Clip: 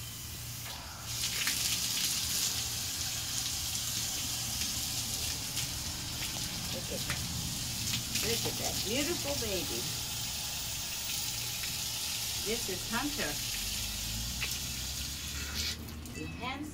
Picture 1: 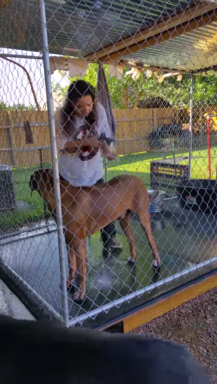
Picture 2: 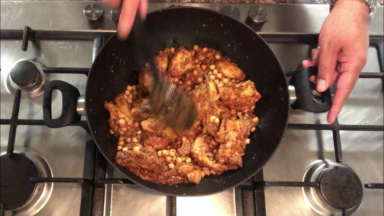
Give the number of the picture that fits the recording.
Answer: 1